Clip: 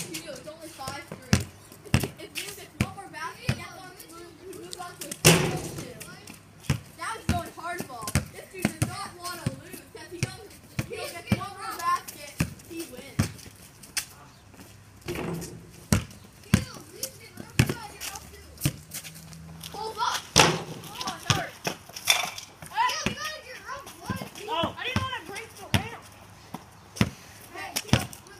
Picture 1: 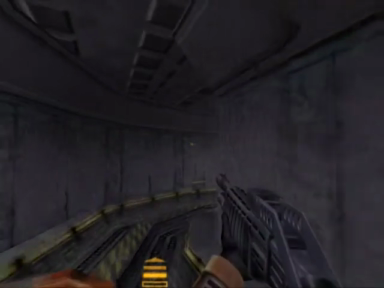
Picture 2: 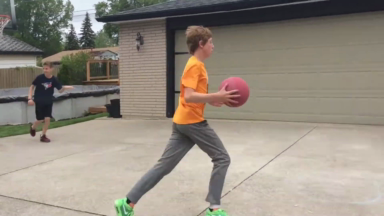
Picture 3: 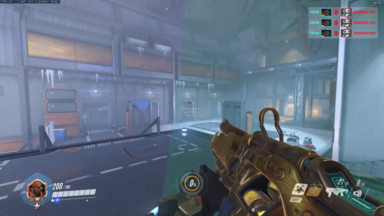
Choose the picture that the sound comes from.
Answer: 2